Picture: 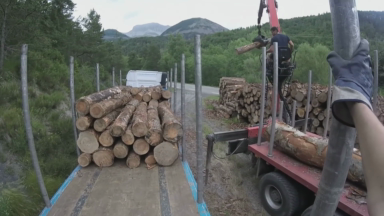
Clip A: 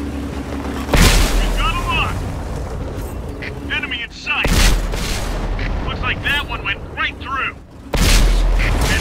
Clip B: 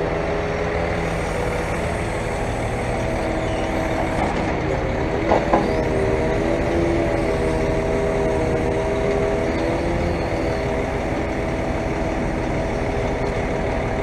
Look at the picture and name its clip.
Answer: B